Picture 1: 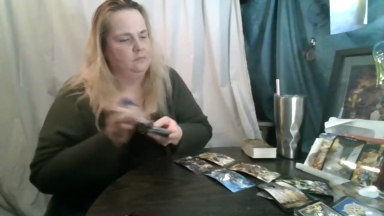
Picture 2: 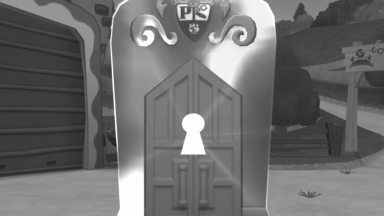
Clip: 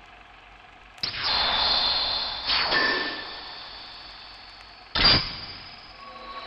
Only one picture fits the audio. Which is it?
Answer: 2